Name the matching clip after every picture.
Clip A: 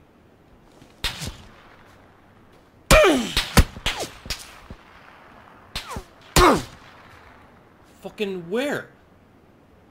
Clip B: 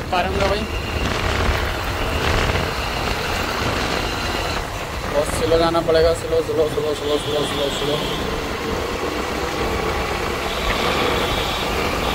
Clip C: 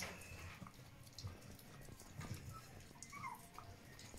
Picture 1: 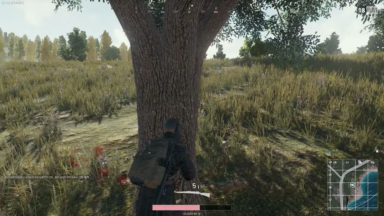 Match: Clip A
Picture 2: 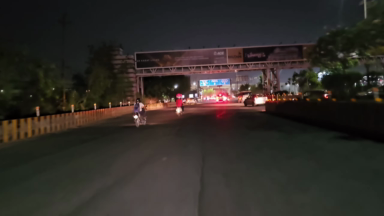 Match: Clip B